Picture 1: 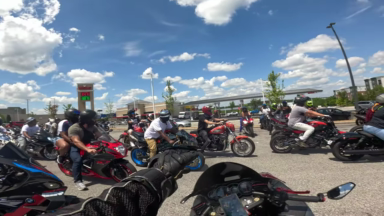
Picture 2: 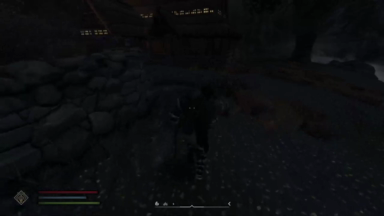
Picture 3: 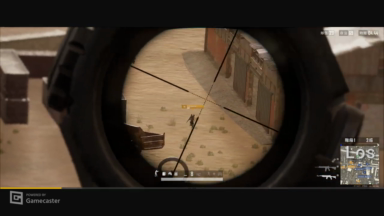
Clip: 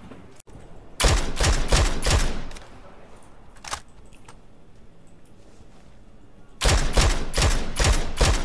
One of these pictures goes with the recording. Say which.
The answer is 3